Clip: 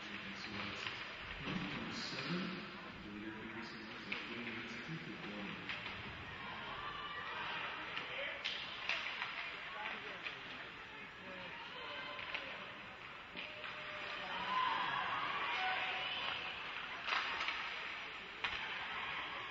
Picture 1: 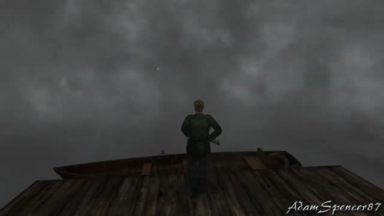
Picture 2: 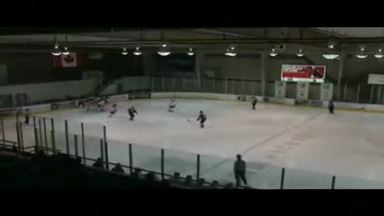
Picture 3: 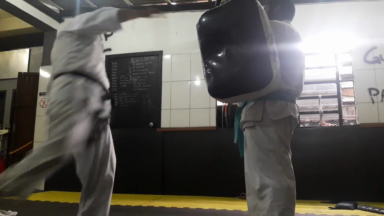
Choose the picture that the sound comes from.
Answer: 2